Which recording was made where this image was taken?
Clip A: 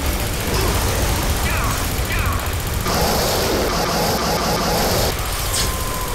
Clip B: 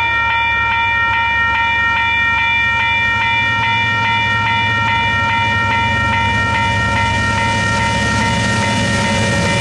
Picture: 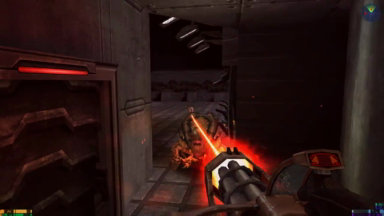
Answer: A